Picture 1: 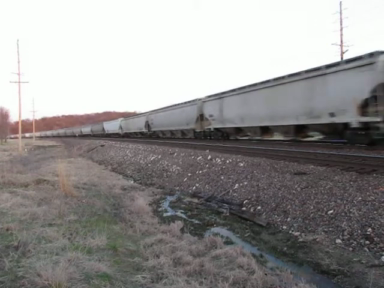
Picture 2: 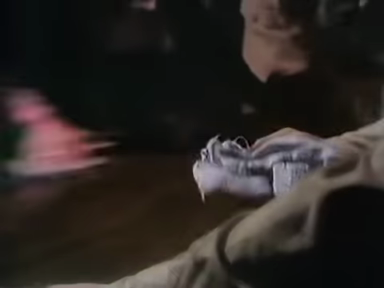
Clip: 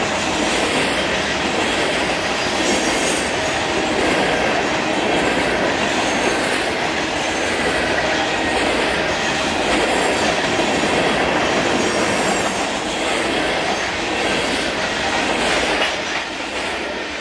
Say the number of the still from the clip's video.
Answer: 1